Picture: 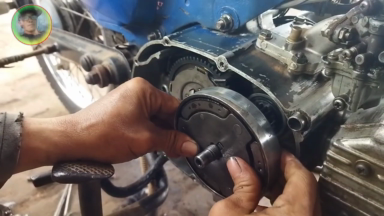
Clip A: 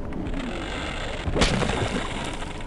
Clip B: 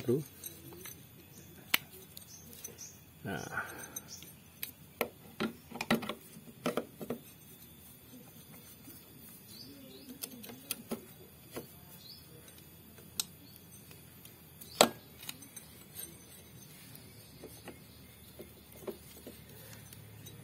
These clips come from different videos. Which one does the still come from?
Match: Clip B